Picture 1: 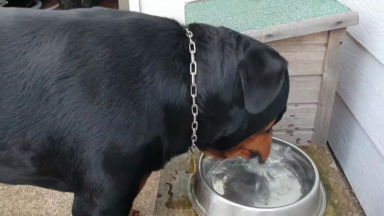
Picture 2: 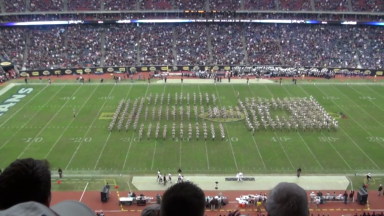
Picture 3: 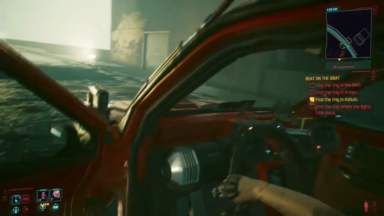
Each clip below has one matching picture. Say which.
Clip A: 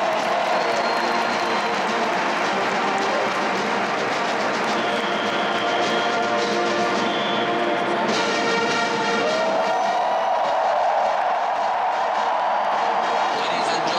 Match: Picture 2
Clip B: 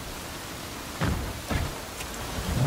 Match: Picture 3